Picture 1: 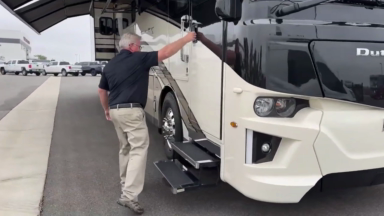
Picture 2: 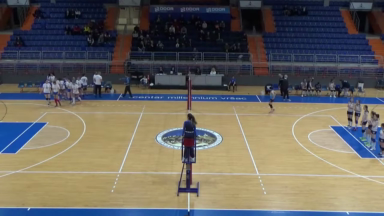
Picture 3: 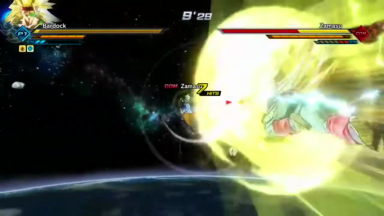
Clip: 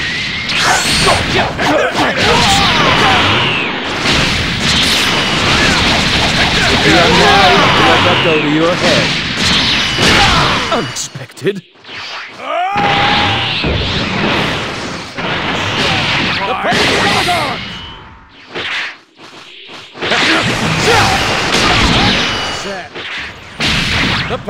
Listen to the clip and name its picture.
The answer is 3